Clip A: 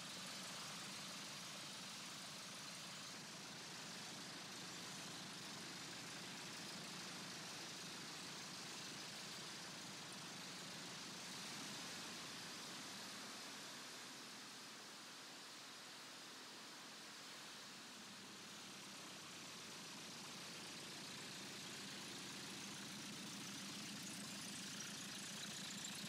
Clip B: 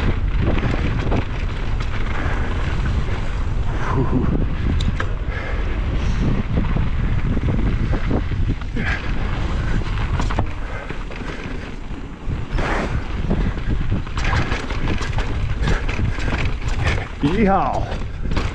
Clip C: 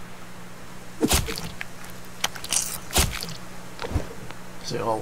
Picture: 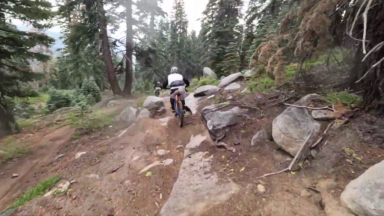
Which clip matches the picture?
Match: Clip B